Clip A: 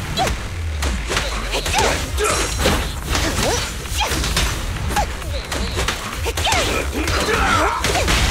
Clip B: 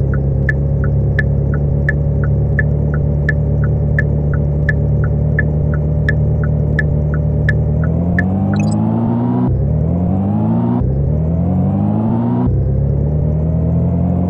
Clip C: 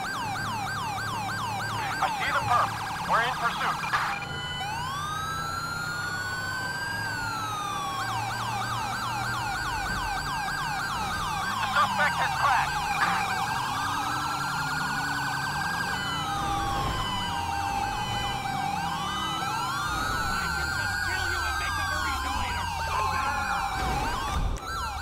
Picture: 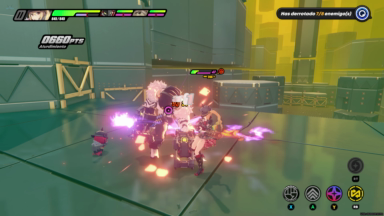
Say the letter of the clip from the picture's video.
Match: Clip A